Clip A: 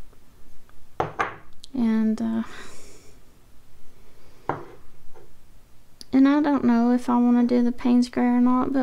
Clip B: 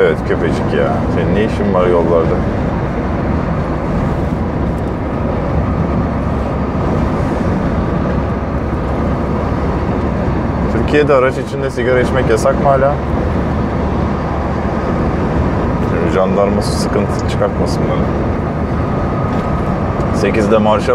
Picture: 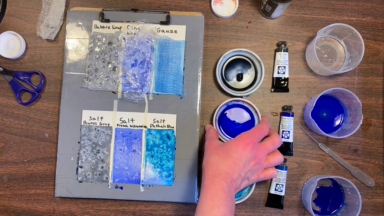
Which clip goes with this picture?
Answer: A